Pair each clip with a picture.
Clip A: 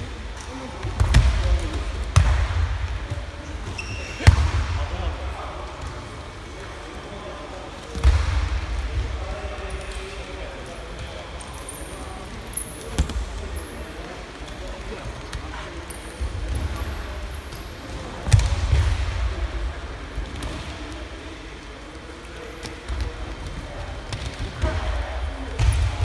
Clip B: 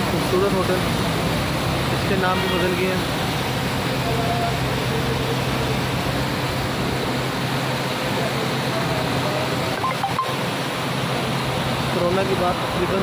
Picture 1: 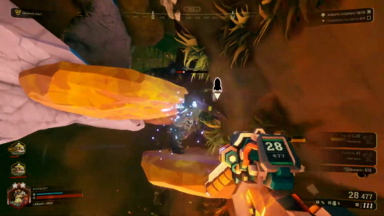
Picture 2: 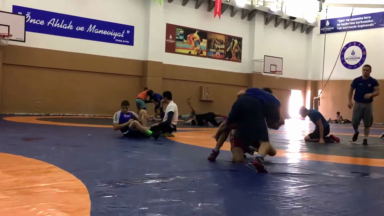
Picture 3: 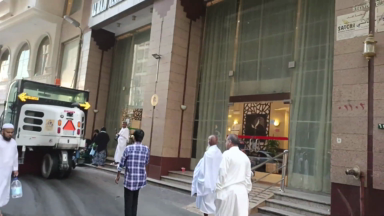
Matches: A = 2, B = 3